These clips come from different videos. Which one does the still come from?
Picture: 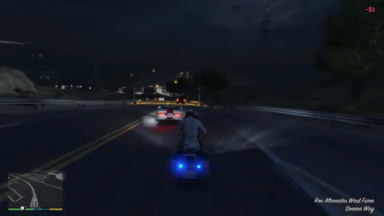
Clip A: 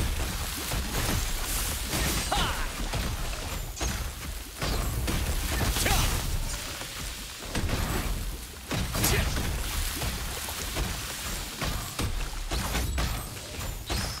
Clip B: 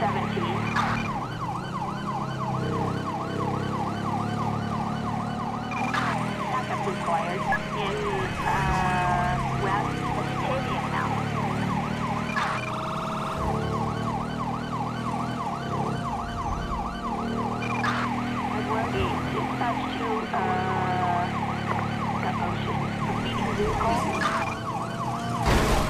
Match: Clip B